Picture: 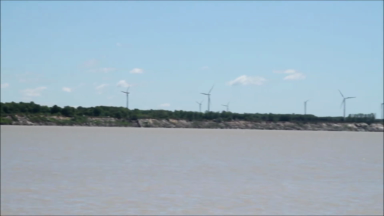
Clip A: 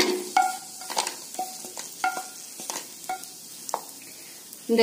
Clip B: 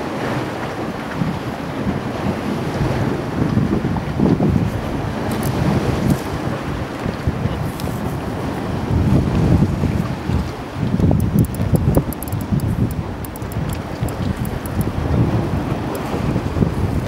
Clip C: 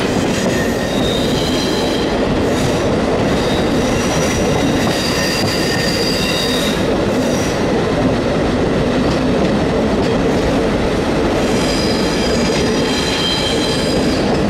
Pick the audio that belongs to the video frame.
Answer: B